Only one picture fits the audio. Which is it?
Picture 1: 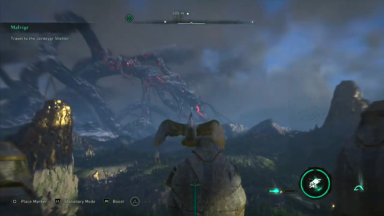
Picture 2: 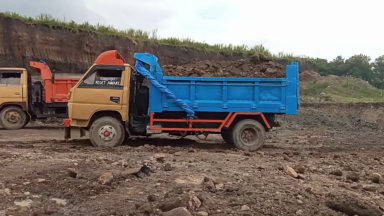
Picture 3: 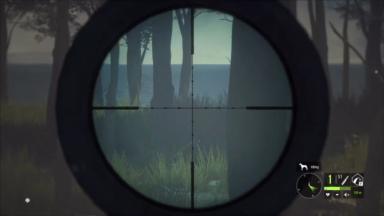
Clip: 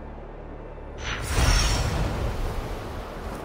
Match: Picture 1